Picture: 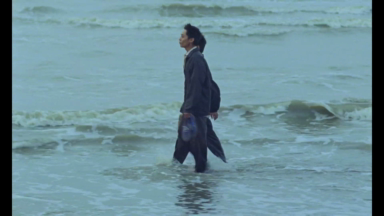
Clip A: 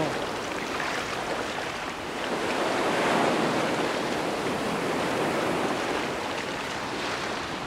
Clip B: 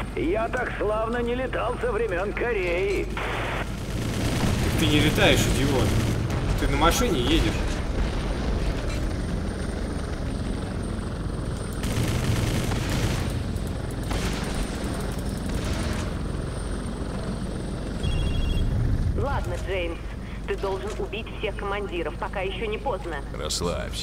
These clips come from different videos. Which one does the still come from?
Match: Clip A